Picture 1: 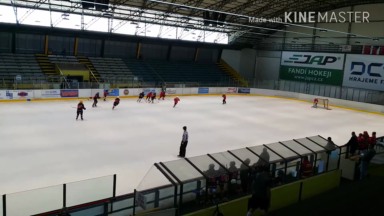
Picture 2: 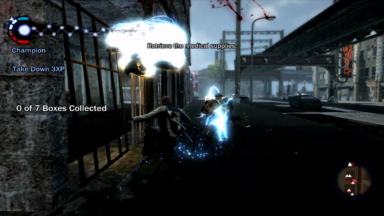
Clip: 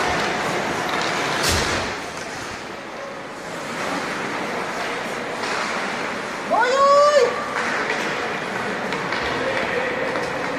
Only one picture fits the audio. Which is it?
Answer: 1